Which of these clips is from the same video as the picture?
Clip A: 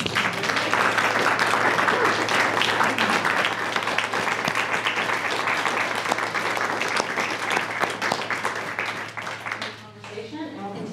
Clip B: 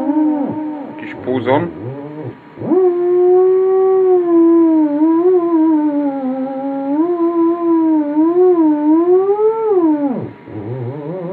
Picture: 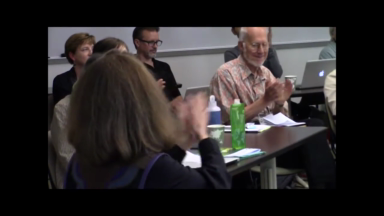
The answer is A